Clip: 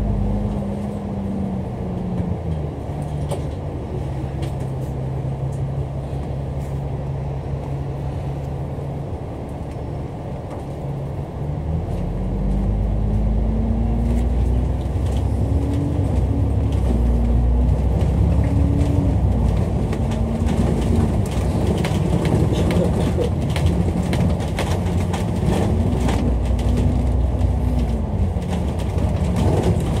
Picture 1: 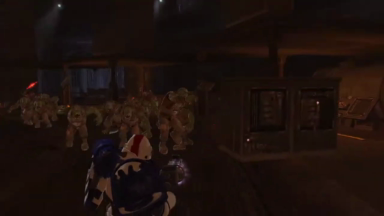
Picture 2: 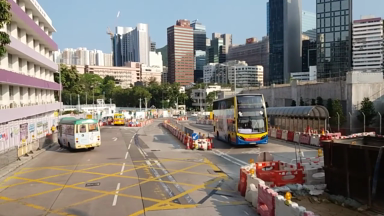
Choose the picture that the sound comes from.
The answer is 2